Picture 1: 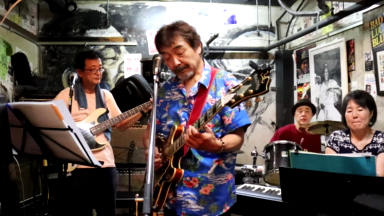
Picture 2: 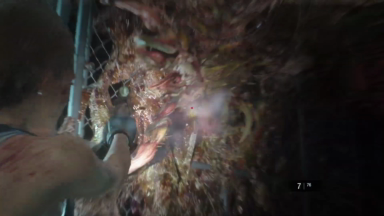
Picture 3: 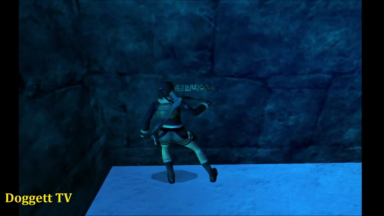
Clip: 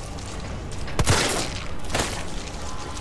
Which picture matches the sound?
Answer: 2